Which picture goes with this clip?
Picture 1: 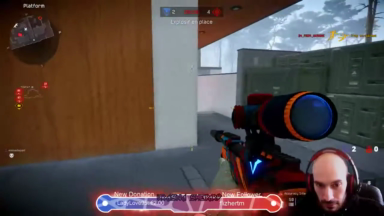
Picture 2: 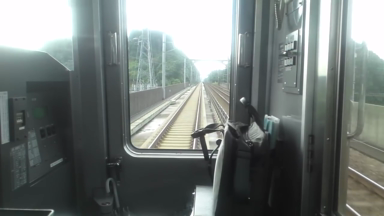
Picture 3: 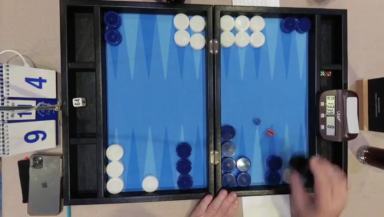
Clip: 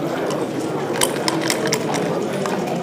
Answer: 3